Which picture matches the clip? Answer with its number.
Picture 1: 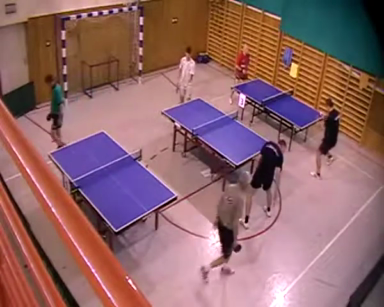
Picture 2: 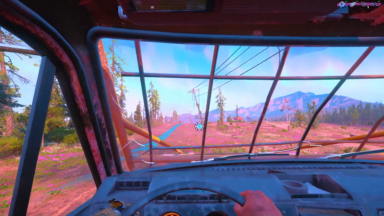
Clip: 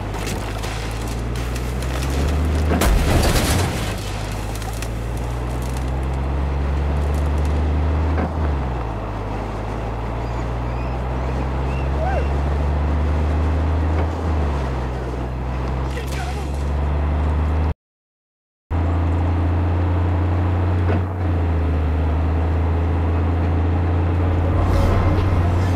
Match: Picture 2